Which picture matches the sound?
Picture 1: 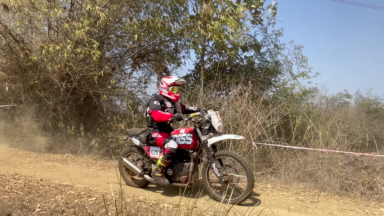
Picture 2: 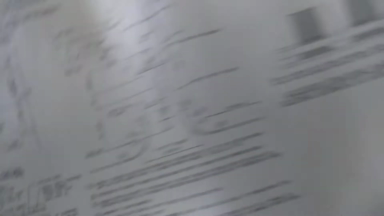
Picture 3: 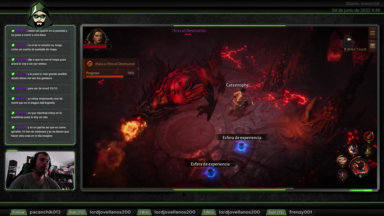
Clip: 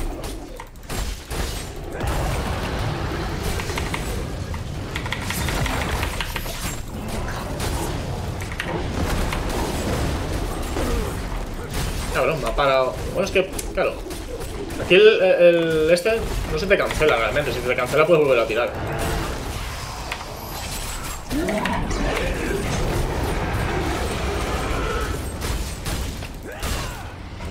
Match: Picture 3